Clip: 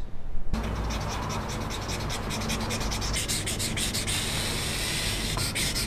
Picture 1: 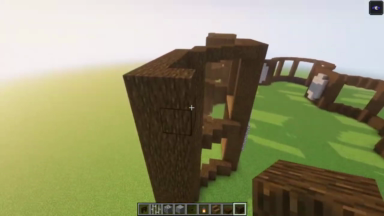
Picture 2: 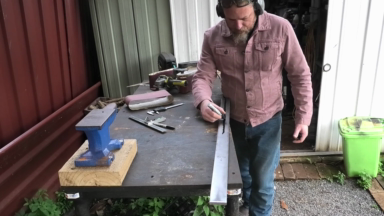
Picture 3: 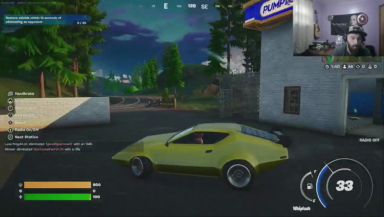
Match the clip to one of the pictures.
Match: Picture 2